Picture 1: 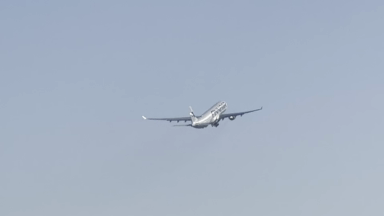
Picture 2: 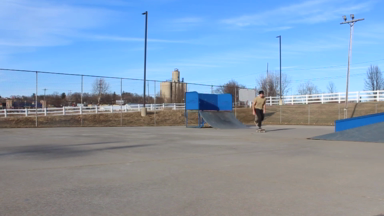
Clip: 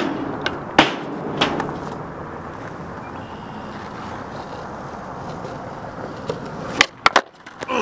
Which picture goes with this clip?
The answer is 2